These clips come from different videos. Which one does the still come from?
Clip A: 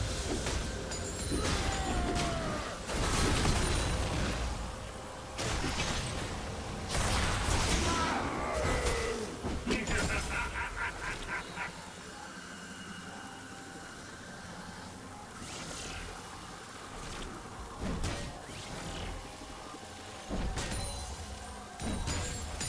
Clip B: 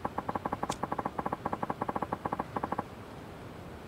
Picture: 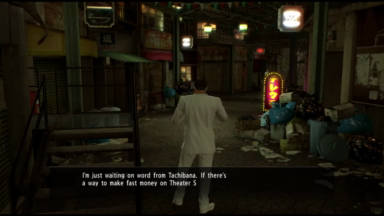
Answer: B